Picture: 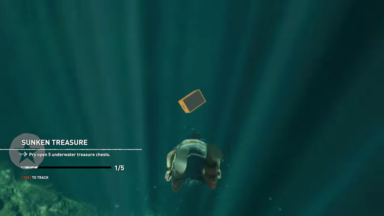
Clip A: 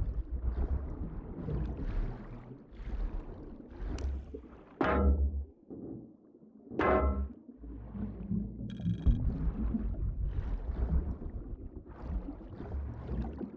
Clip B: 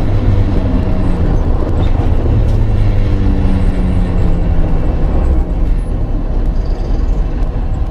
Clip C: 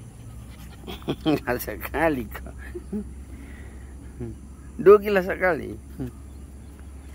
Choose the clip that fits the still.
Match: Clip A